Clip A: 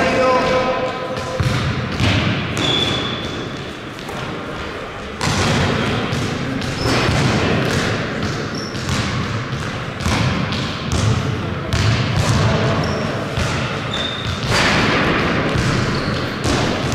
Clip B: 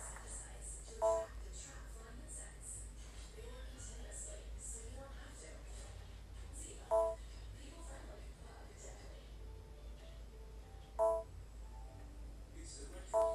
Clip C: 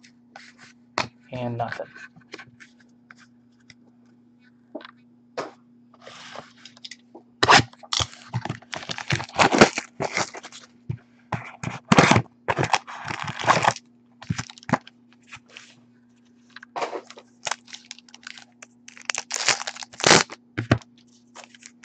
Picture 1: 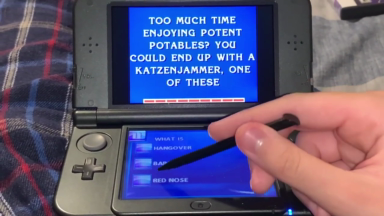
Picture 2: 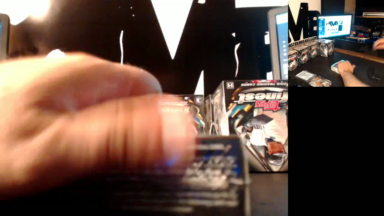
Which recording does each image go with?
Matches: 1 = B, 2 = C